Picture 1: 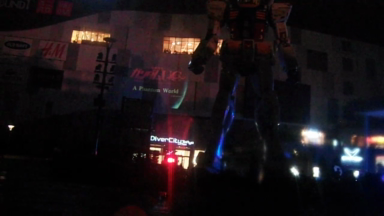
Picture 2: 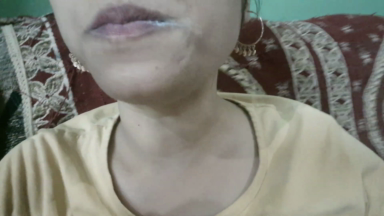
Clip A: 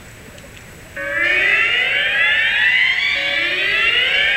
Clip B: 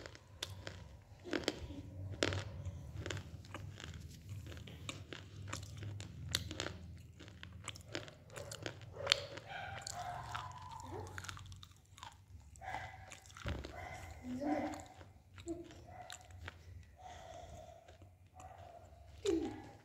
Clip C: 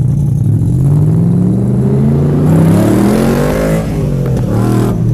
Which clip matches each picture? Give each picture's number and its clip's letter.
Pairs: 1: A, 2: B